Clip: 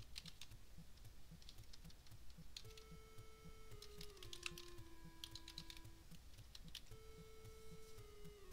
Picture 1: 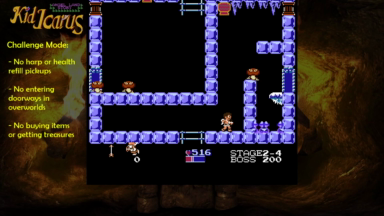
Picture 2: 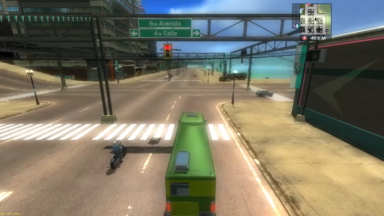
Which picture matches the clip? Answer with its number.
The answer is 1